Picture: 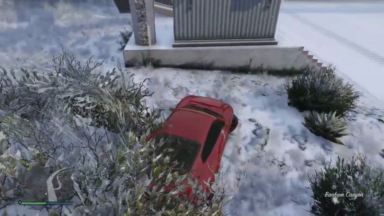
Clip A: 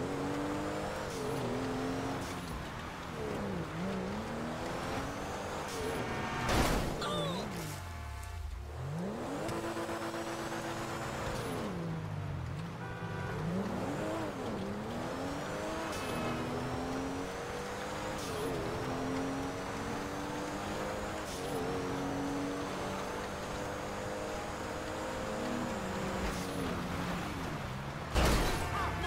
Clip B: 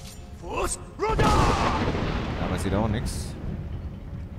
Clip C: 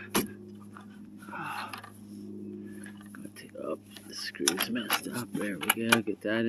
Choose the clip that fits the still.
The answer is A